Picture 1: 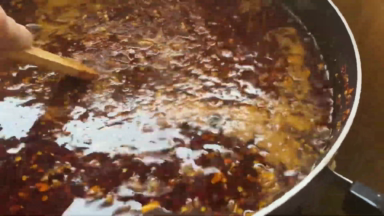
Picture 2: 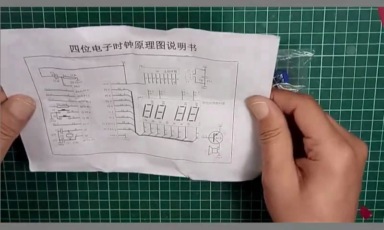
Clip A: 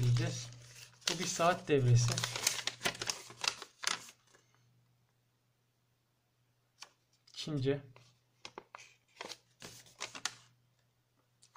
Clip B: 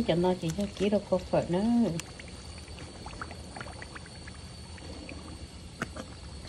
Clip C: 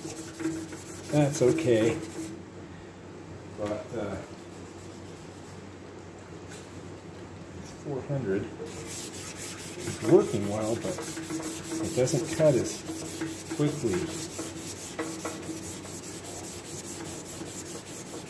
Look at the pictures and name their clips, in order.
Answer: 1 B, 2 A